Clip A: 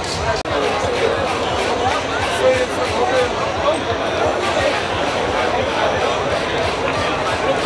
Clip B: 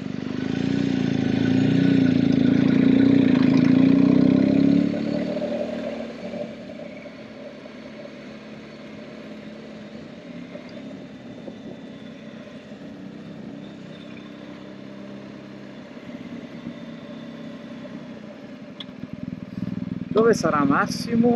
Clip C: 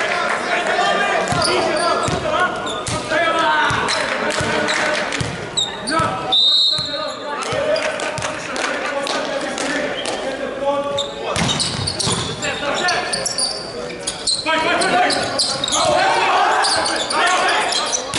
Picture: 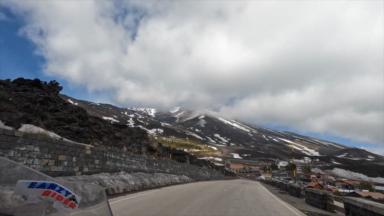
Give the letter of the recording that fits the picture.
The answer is B